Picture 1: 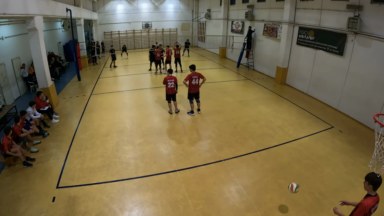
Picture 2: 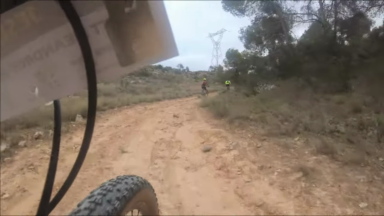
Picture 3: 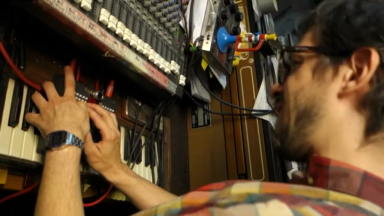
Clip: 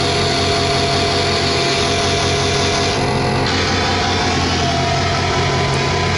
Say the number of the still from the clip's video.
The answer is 3